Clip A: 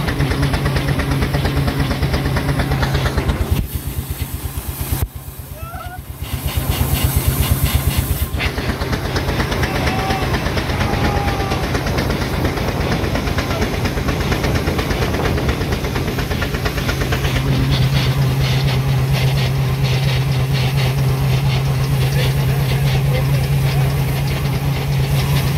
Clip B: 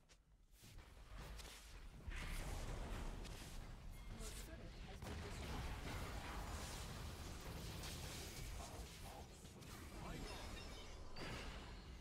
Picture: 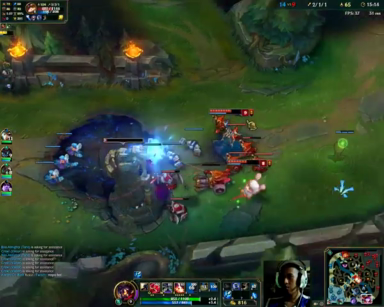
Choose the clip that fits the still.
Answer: B